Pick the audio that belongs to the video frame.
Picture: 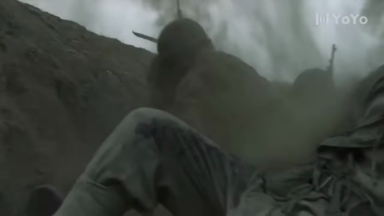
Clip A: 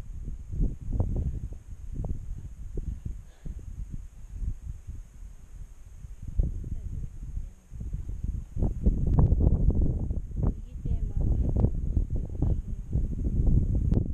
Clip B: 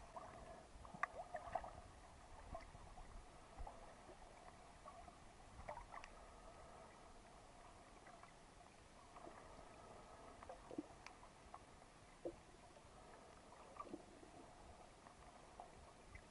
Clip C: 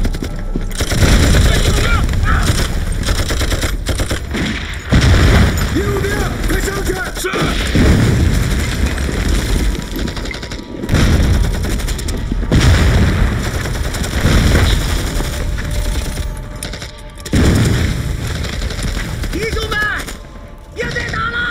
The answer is C